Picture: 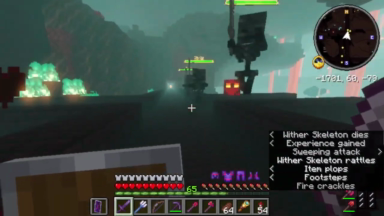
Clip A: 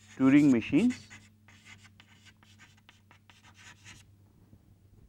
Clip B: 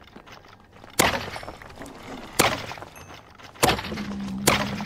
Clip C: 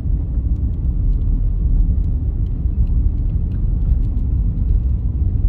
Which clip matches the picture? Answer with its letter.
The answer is B